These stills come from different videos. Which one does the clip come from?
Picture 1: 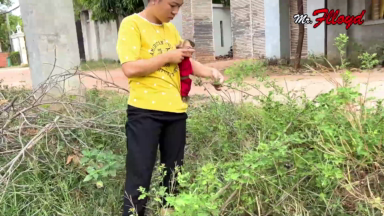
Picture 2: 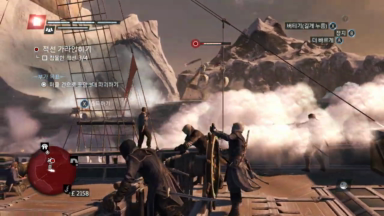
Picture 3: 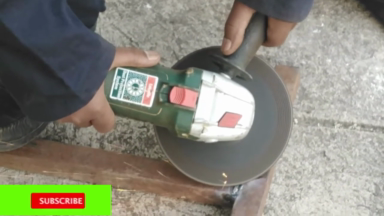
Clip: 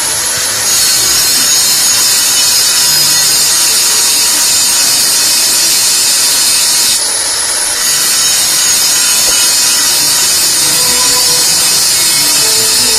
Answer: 3